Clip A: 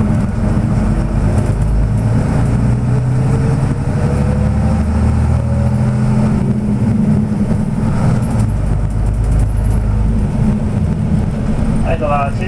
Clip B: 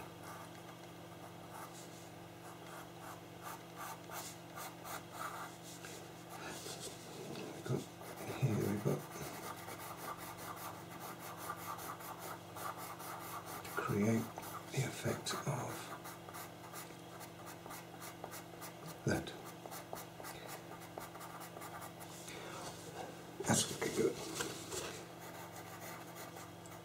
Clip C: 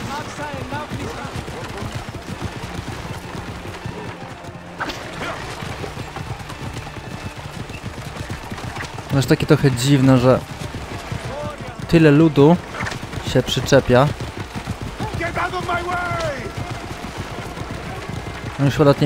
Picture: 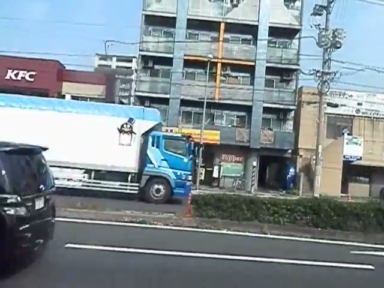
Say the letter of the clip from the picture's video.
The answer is A